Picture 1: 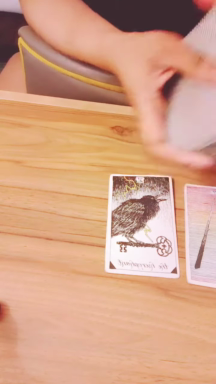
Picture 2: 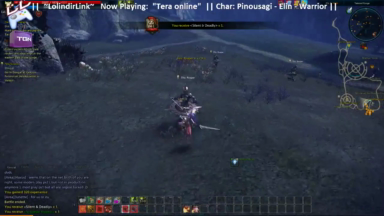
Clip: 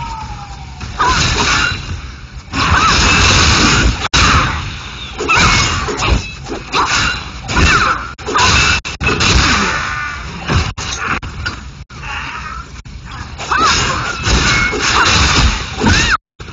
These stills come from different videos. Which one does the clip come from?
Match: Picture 2